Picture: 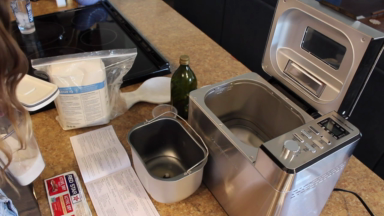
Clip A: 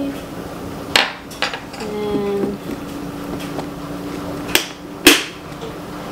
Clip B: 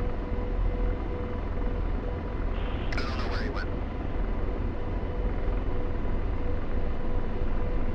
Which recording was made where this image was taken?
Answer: A